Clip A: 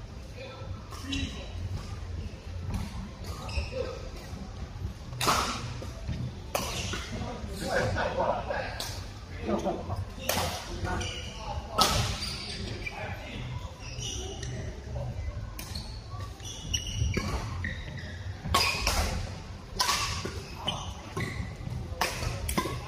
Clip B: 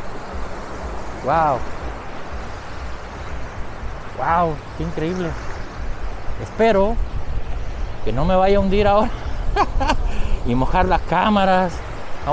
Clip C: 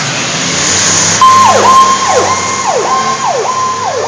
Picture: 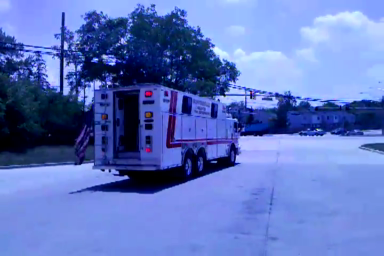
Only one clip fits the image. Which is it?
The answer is C